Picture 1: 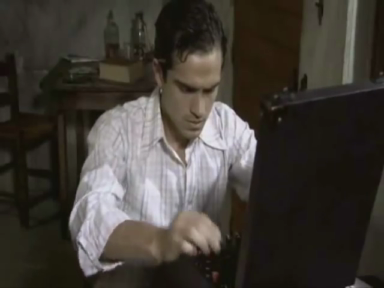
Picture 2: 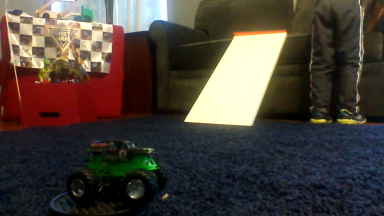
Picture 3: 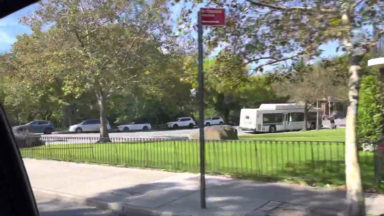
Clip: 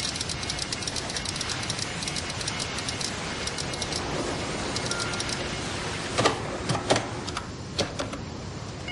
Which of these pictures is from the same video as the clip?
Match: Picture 1